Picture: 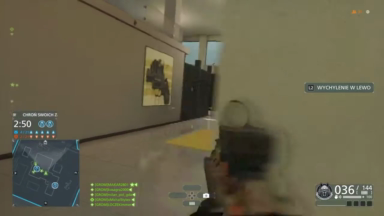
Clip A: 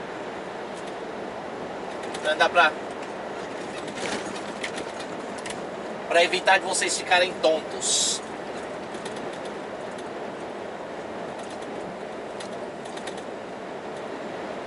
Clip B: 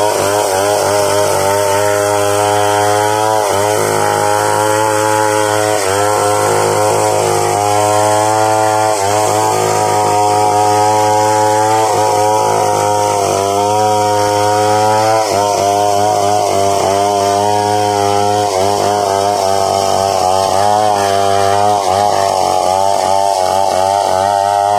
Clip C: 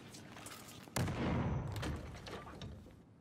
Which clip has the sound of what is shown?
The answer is C